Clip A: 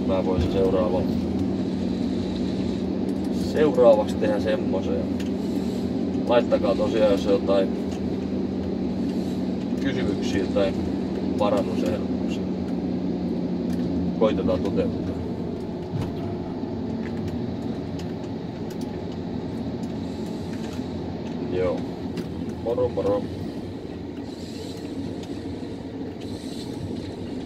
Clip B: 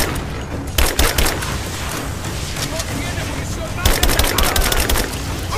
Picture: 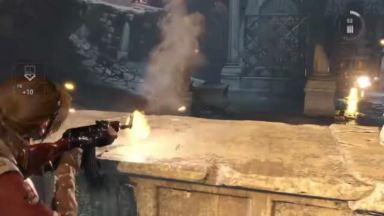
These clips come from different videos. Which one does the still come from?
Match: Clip B